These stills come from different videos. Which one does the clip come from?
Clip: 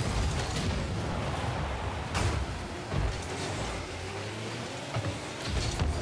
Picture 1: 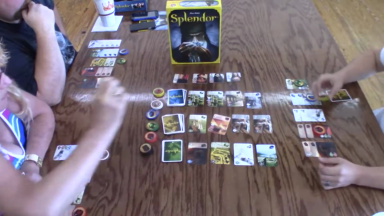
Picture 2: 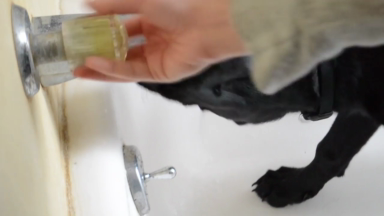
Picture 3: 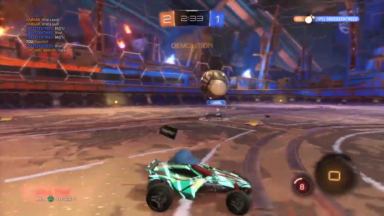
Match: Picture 3